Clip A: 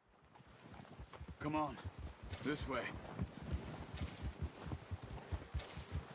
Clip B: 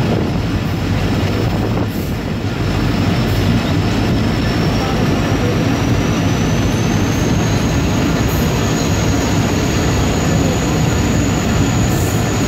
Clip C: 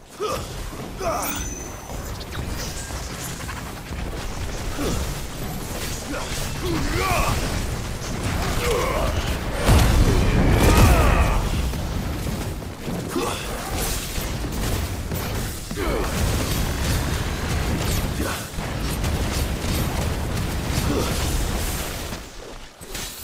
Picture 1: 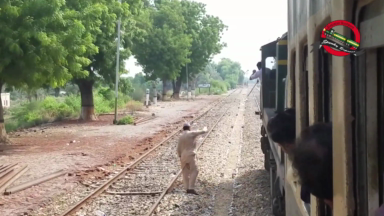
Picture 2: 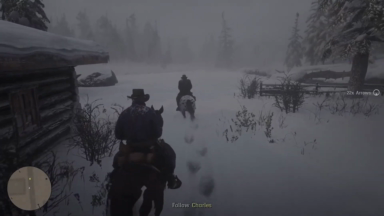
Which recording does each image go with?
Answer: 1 B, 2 A